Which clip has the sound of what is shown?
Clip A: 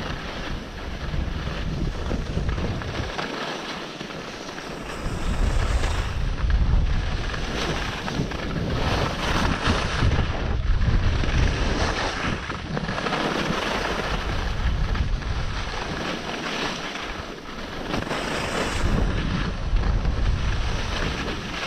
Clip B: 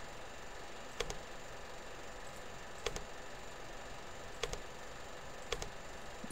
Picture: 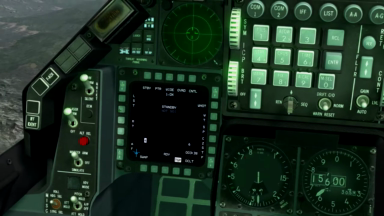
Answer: B